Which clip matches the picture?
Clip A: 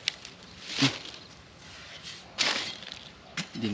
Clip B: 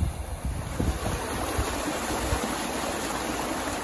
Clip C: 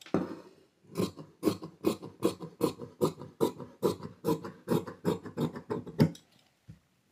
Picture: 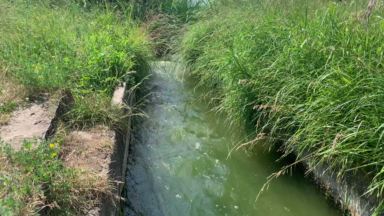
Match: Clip B